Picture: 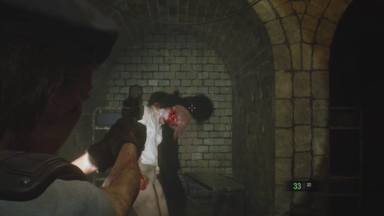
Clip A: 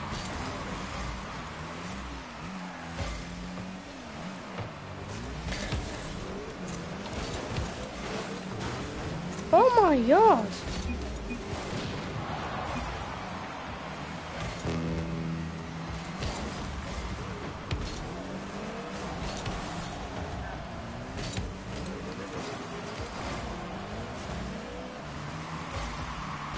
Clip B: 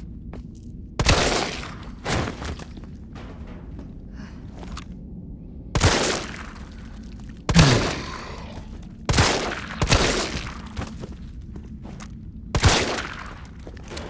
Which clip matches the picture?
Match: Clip B